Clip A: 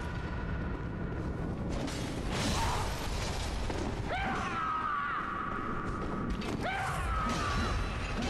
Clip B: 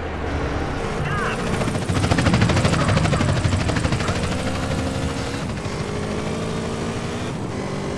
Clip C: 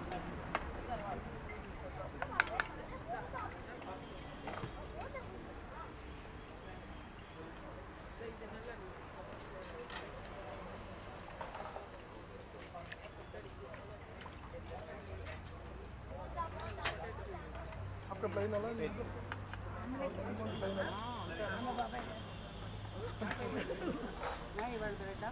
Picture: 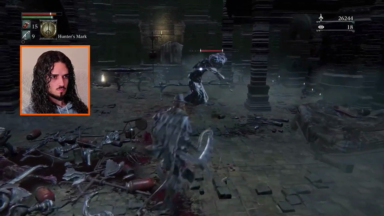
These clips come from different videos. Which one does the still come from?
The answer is A